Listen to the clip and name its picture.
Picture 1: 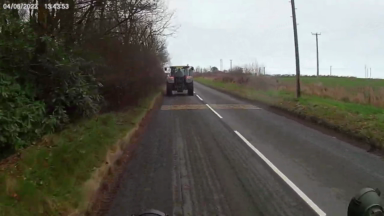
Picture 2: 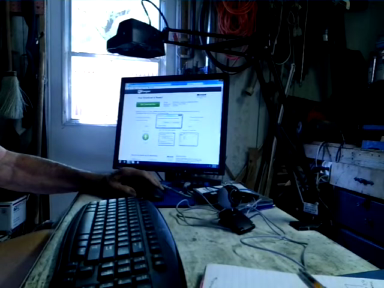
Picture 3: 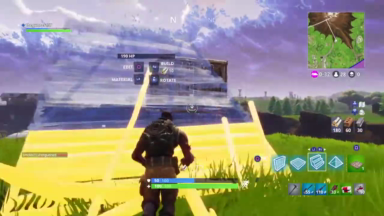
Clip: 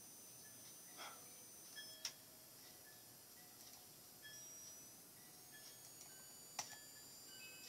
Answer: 2